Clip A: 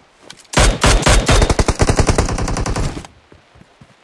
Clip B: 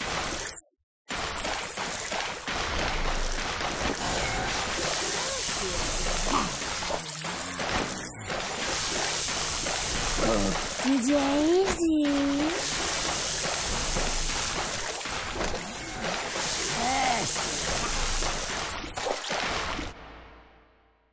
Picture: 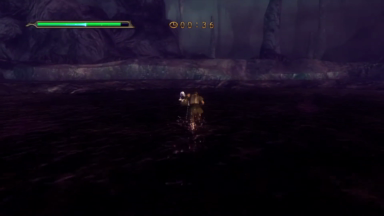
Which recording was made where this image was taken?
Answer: B